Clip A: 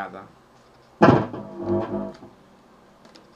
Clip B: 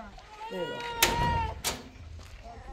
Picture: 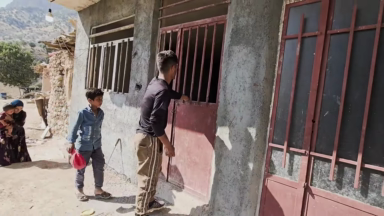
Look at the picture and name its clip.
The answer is B